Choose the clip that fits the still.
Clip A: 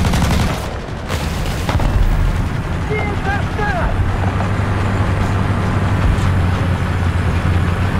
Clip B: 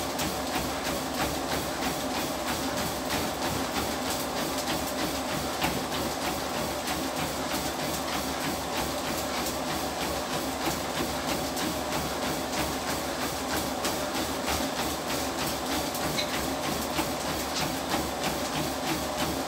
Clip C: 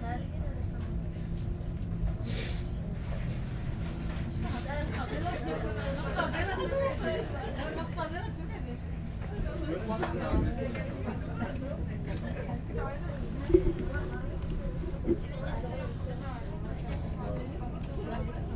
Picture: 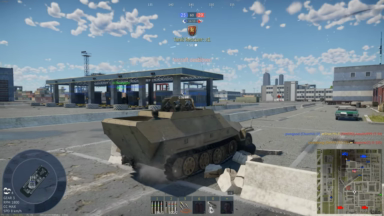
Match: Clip A